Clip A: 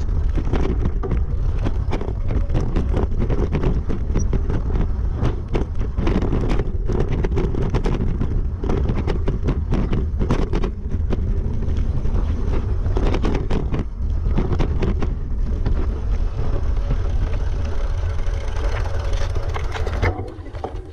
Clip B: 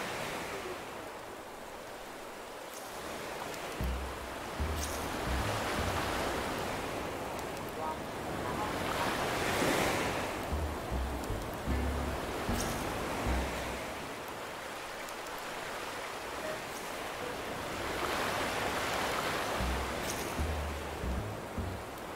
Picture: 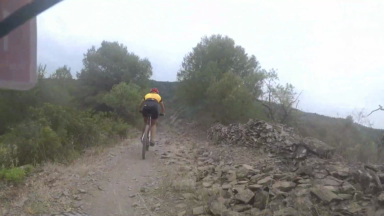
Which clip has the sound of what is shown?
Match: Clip A